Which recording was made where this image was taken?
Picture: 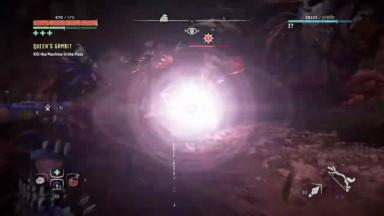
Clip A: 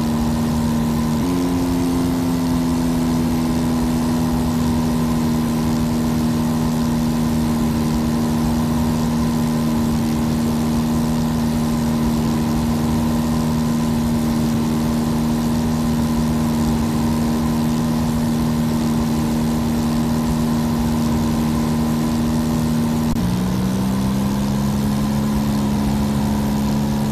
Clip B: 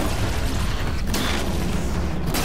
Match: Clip B